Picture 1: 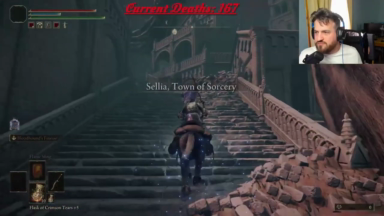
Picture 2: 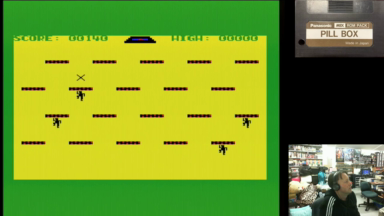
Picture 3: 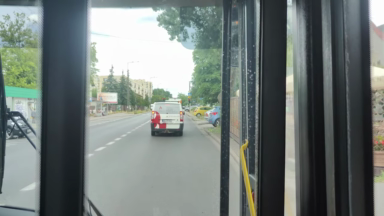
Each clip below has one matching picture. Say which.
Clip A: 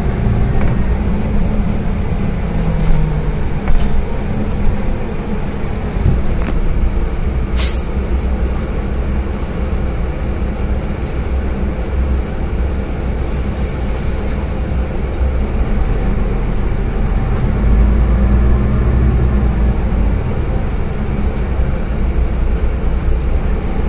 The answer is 3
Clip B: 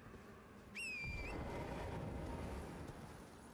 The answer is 1